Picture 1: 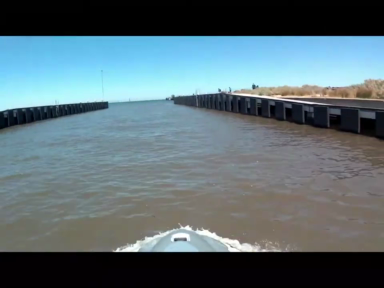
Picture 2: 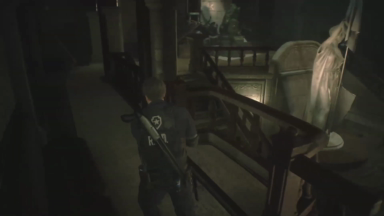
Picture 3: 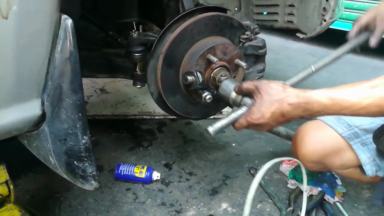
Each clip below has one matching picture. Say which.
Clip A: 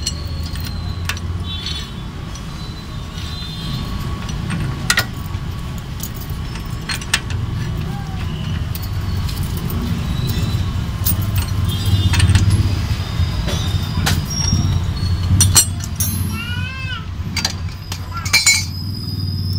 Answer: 3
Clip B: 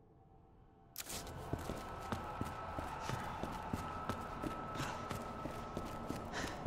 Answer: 2